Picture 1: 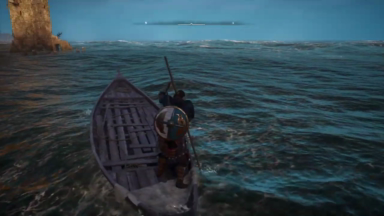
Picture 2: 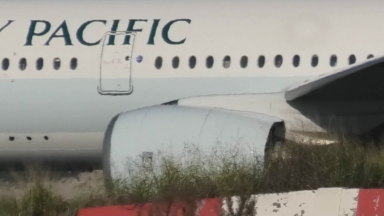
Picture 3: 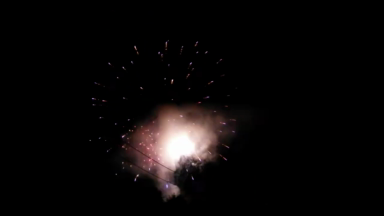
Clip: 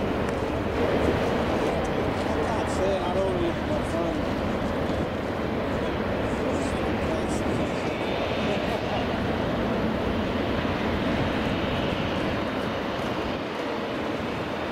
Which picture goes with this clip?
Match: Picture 2